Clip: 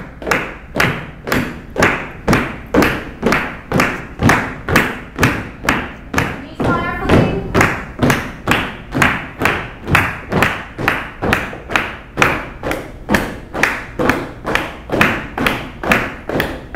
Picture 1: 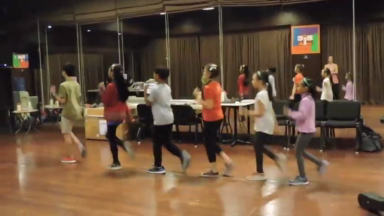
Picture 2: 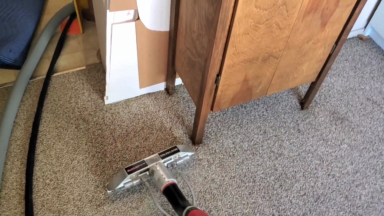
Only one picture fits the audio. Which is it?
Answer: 1